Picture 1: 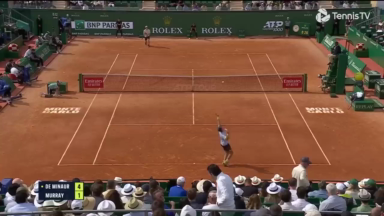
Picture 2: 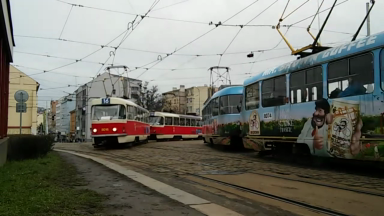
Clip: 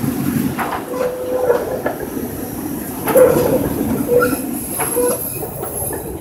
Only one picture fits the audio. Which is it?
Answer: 2